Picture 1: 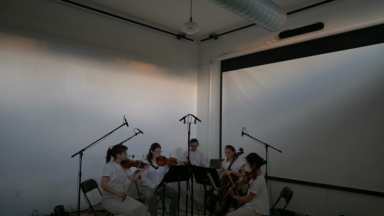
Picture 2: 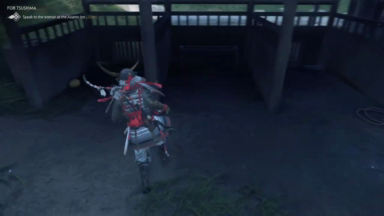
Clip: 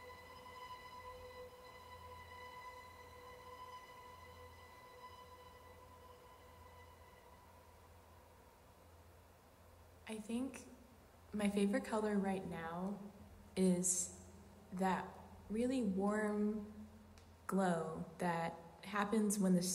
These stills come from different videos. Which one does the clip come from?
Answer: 1